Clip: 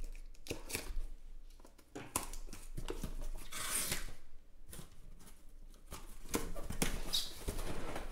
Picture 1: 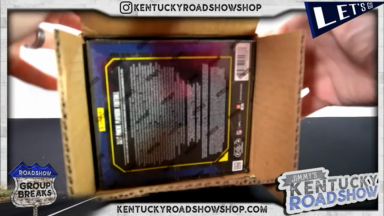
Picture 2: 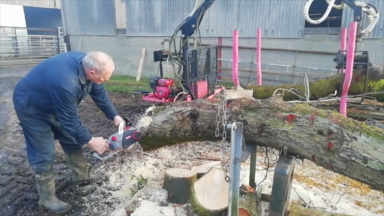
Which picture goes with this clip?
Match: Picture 1